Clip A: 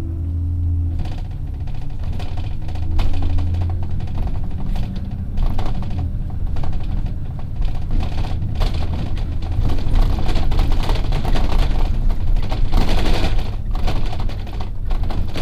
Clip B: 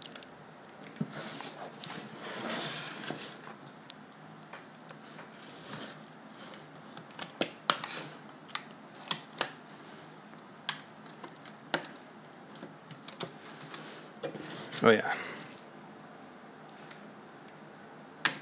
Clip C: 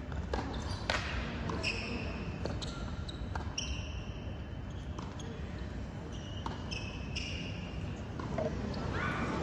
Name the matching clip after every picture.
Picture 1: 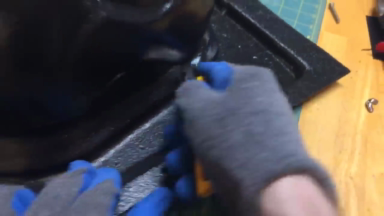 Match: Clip B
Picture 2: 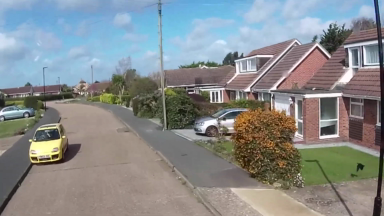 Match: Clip A